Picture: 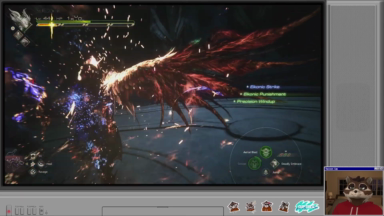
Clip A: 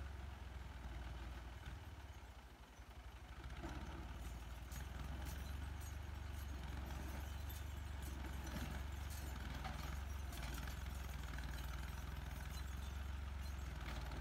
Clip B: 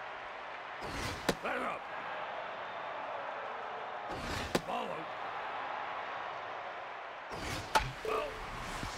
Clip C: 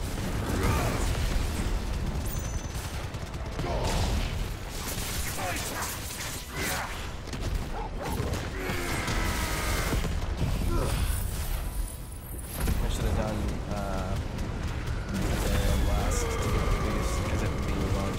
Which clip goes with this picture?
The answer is C